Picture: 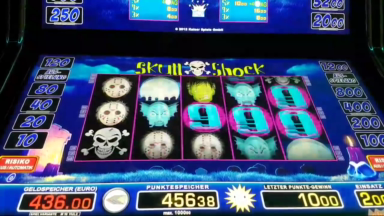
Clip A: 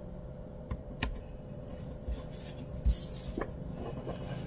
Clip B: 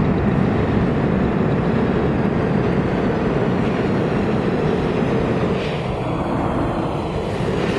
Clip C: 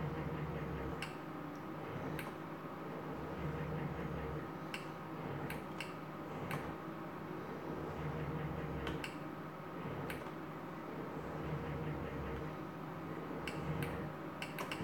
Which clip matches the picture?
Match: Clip C